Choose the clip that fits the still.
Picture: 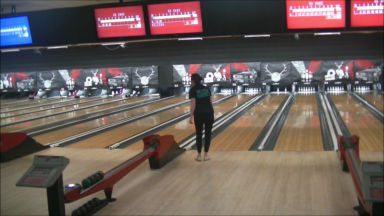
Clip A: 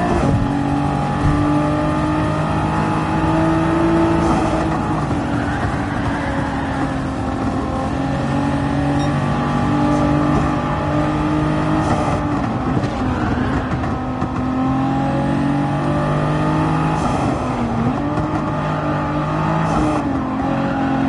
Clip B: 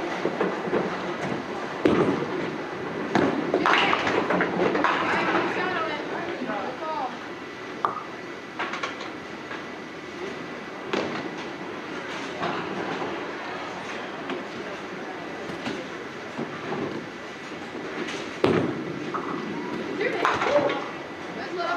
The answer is B